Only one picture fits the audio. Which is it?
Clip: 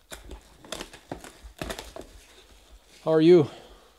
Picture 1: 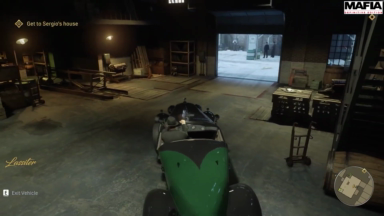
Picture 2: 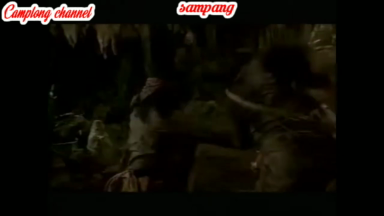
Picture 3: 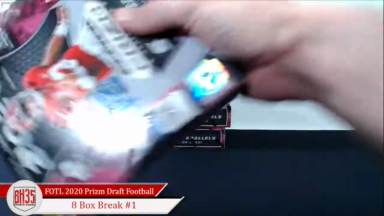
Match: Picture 3